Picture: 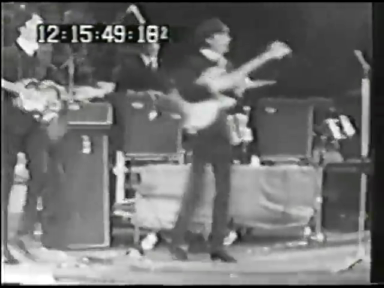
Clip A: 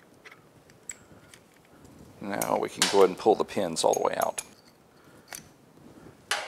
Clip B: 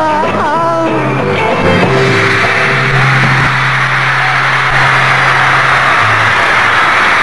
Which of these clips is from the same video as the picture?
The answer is B